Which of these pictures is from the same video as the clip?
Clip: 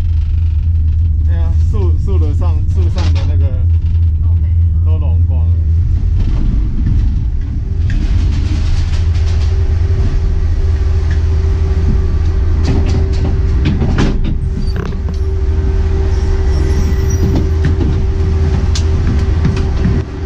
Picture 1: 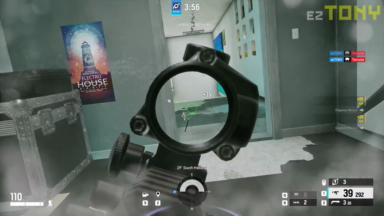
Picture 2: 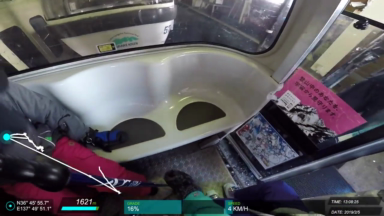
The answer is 2